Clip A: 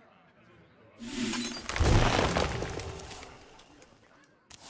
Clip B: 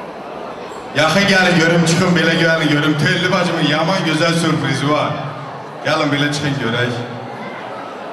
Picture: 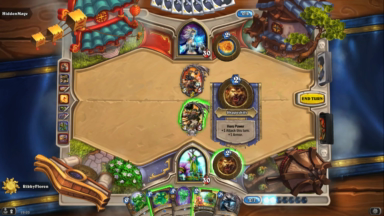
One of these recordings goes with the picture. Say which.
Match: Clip A